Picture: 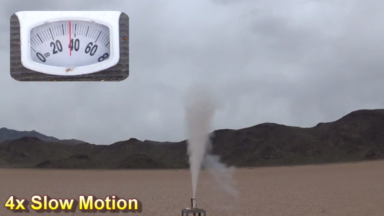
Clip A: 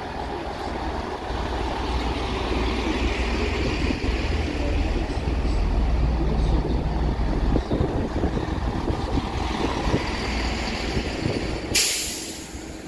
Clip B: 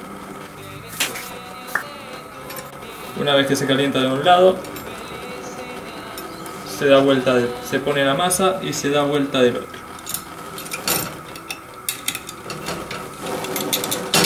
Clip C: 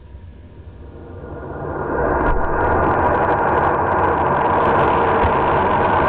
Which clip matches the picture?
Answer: C